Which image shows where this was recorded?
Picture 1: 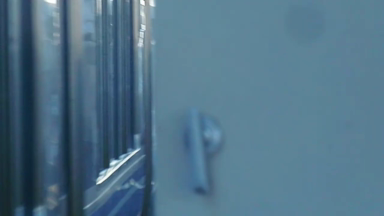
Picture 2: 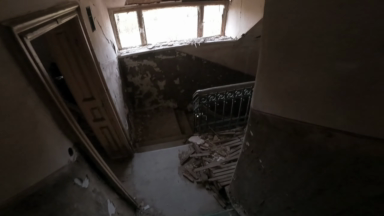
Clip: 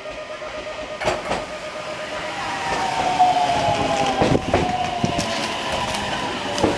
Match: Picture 1